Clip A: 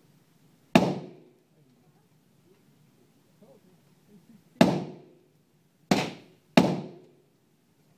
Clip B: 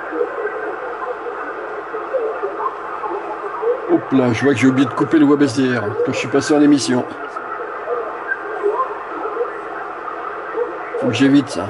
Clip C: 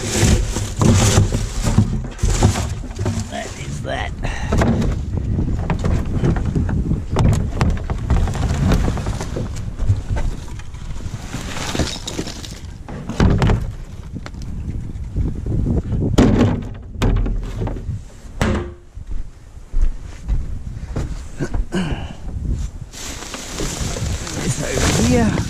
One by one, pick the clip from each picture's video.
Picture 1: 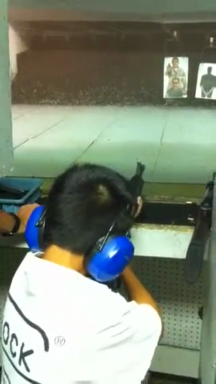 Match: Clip A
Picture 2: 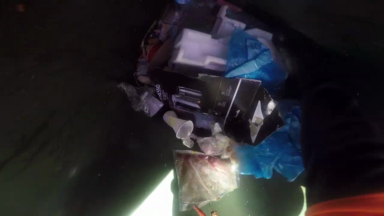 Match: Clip C